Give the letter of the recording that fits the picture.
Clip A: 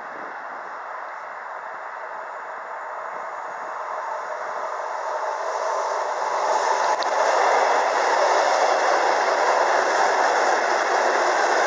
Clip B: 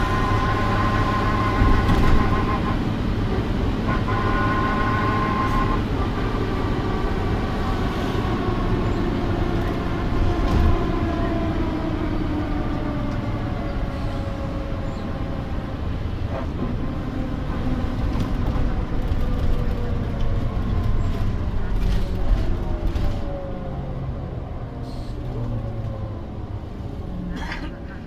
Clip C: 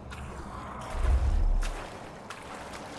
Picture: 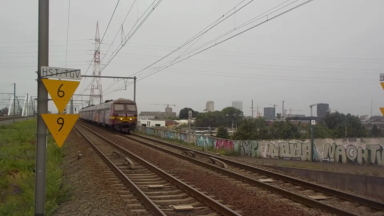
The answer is A